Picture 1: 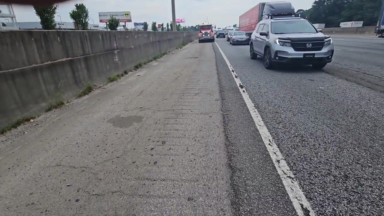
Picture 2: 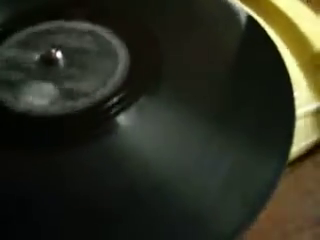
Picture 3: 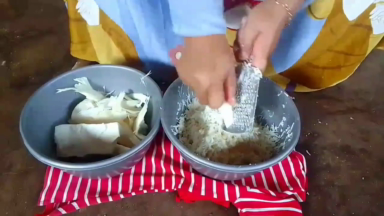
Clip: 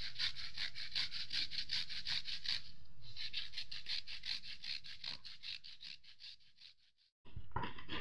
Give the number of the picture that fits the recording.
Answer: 3